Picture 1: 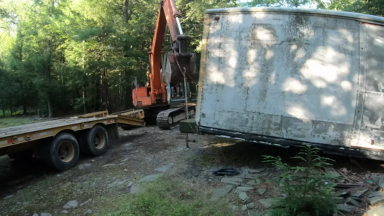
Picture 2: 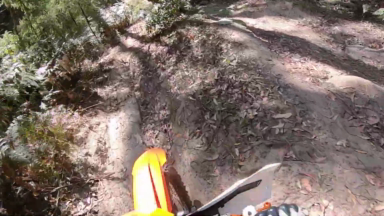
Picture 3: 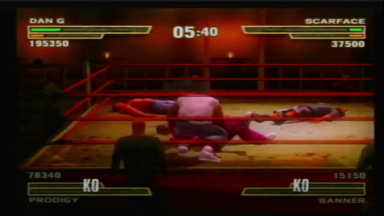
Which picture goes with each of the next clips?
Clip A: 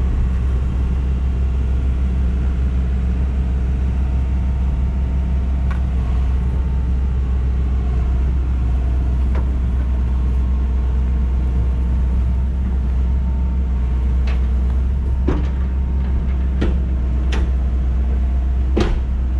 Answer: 1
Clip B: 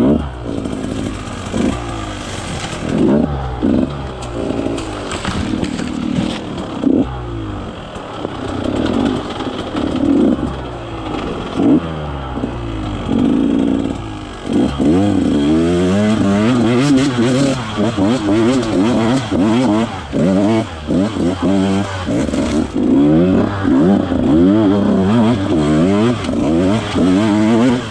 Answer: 2